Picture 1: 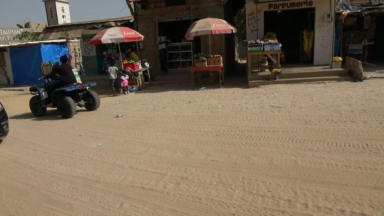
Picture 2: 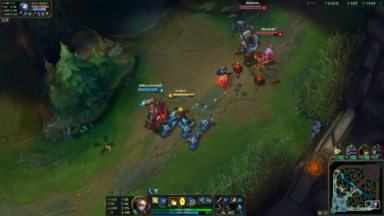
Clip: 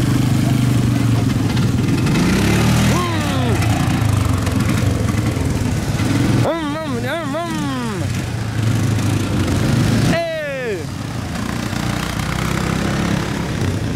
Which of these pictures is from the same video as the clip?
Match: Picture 1